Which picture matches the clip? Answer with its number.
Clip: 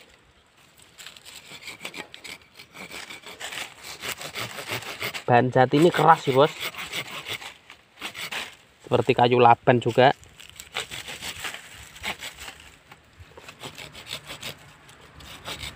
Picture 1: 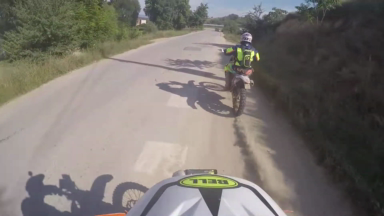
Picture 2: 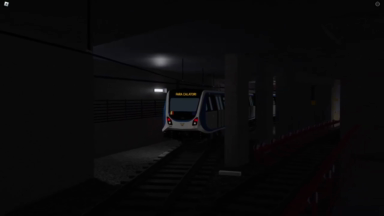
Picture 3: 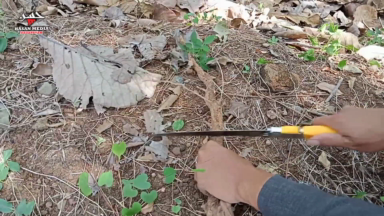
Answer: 3